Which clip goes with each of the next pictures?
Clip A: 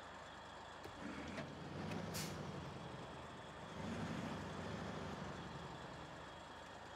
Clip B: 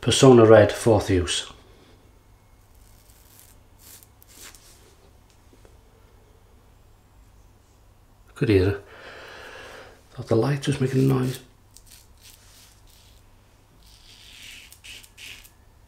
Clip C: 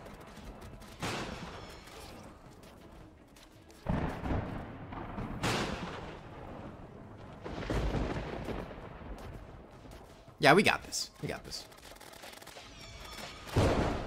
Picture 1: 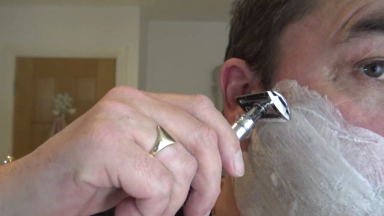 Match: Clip B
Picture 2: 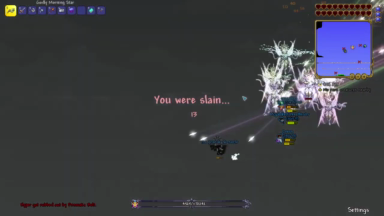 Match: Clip C